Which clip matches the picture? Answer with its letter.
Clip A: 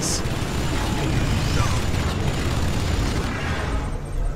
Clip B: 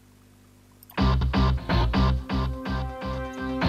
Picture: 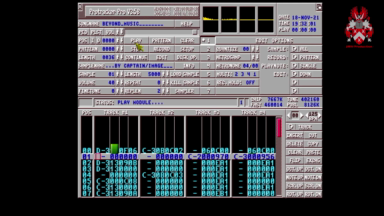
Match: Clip B